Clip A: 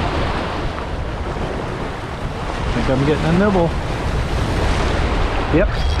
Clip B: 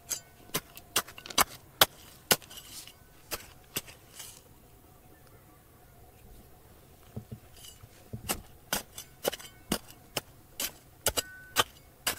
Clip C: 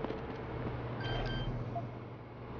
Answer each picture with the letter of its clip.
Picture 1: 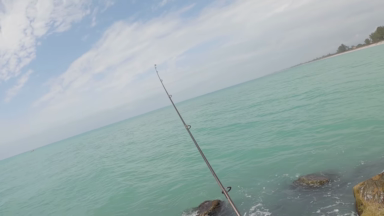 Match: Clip A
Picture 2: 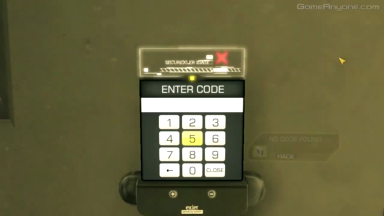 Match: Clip C